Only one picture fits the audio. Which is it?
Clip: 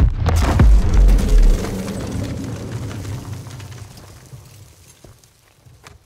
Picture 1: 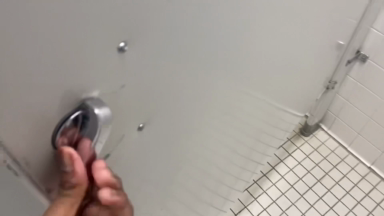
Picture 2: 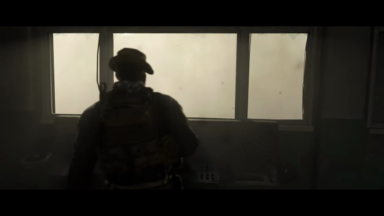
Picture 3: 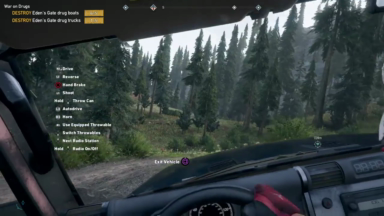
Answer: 2